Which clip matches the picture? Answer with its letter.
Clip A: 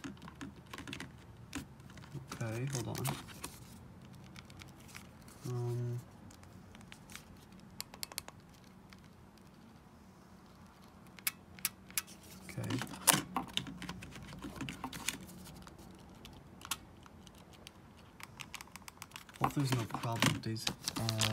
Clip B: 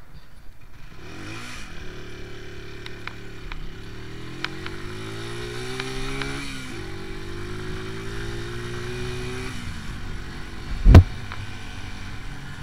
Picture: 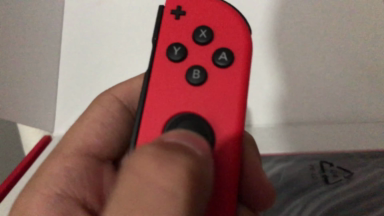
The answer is A